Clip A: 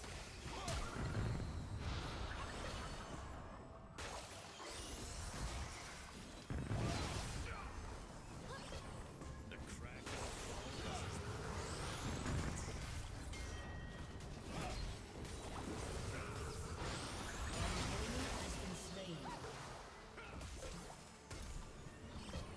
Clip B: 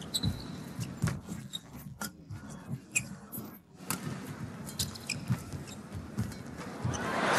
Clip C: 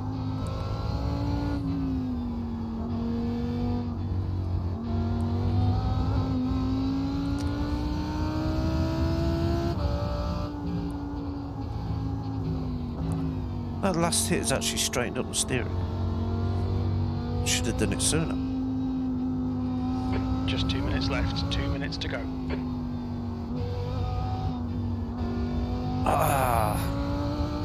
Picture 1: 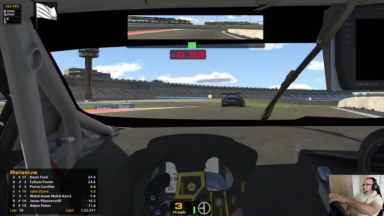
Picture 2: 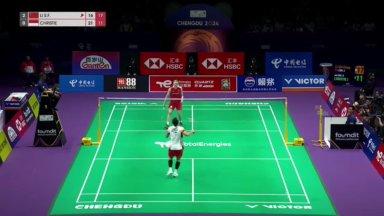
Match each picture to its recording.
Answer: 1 C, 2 B